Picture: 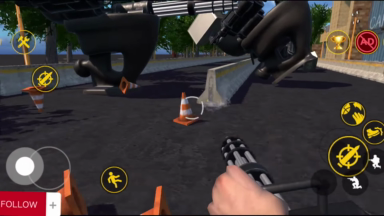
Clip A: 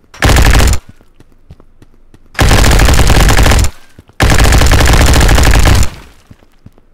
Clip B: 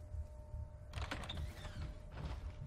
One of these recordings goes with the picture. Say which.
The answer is A